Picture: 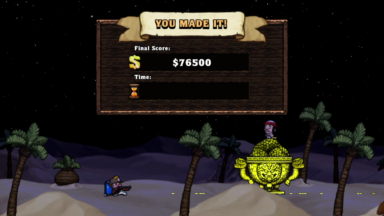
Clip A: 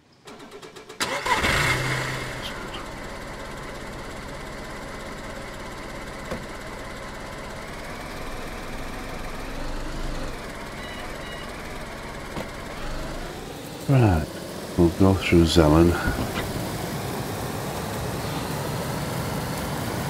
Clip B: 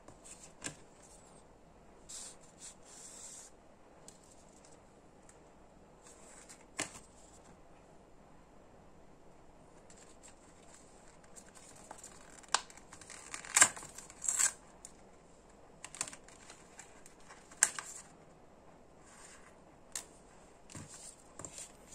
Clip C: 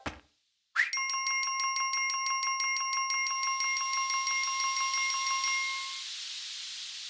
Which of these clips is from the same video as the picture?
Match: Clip C